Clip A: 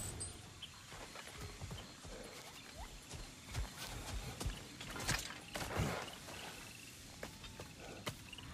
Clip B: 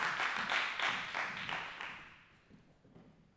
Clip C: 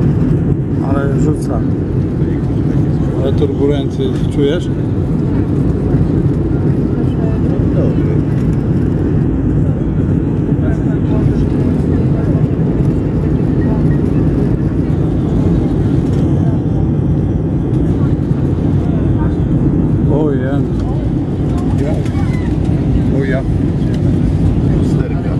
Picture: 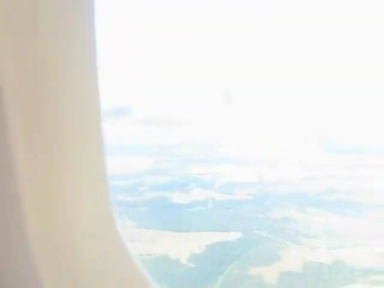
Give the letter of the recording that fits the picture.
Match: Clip C